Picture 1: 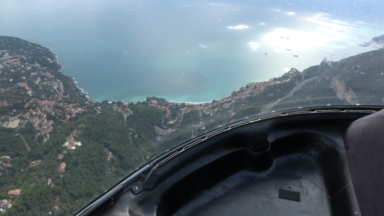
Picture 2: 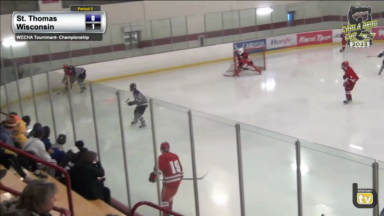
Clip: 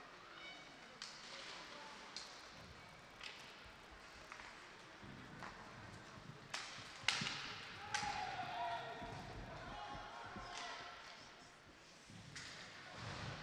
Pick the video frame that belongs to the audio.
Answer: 2